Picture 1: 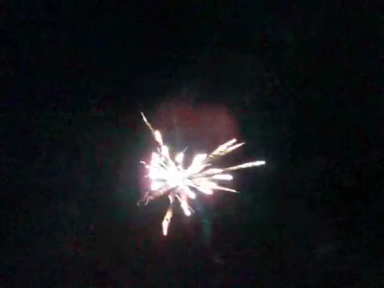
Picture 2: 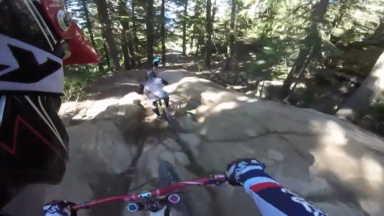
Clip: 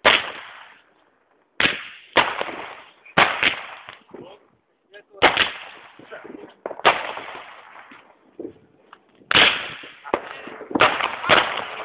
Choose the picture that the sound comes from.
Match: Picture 1